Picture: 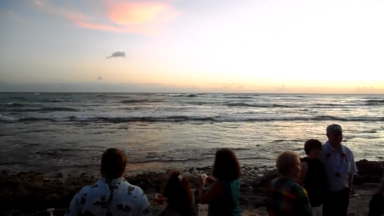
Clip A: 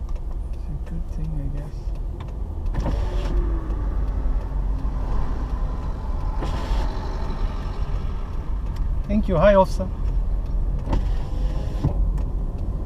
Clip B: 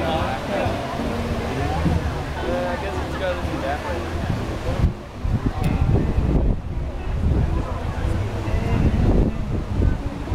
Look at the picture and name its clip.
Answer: B